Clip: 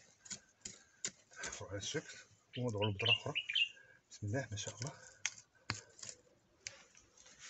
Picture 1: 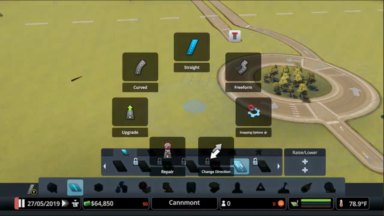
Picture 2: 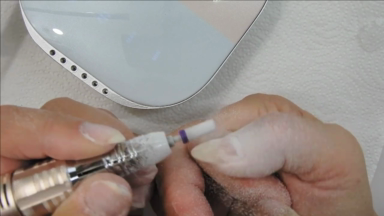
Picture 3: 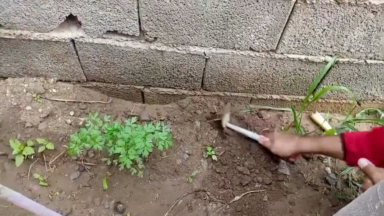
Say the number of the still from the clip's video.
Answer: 3